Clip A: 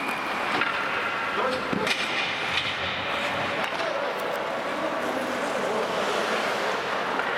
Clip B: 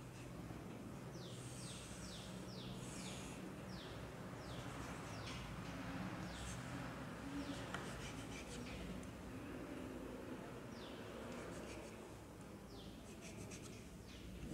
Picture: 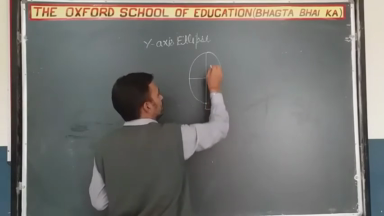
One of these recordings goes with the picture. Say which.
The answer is B